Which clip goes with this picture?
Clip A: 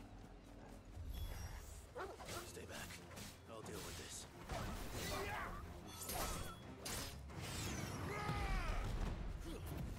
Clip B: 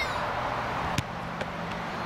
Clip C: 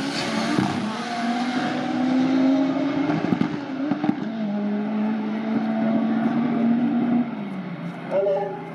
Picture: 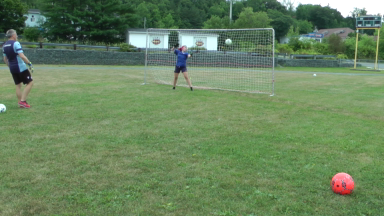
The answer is B